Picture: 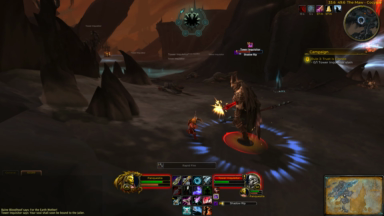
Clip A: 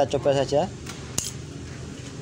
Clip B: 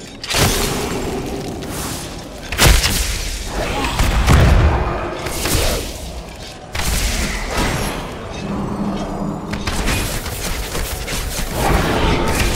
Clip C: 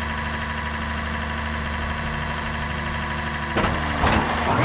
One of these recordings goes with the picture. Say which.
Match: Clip B